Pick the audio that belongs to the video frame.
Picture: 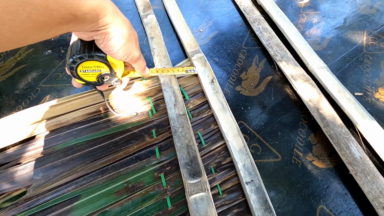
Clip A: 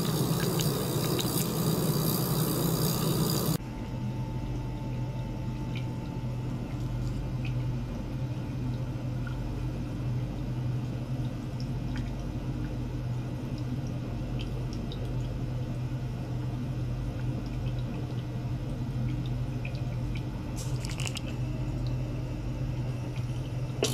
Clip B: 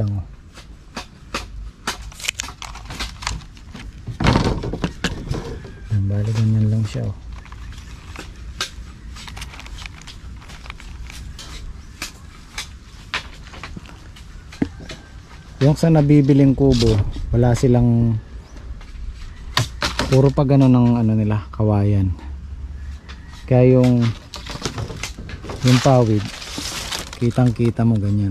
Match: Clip B